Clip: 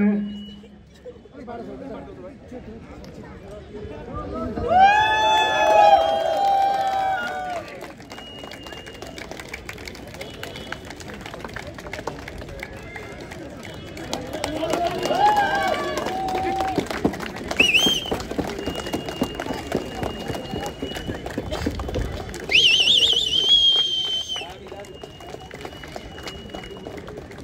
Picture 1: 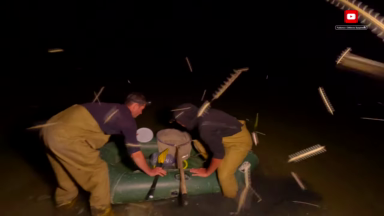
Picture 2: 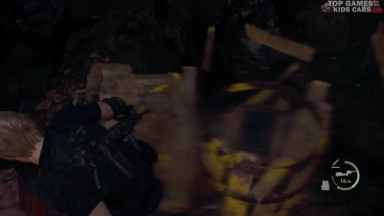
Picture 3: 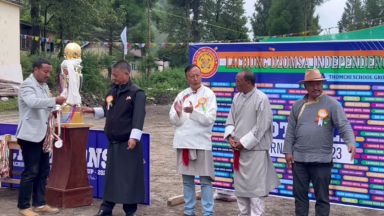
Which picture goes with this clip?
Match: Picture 3